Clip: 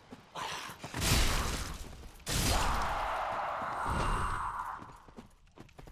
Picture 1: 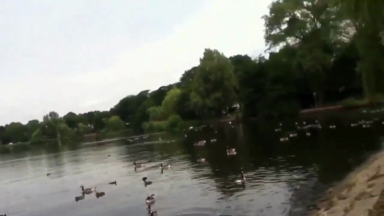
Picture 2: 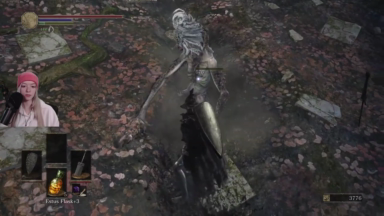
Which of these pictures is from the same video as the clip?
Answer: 2